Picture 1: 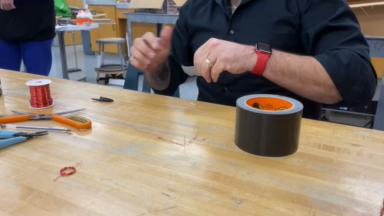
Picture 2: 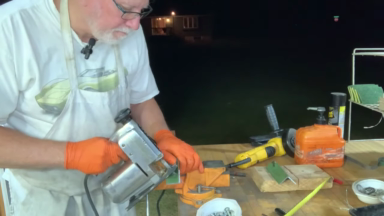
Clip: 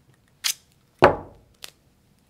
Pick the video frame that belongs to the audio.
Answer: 1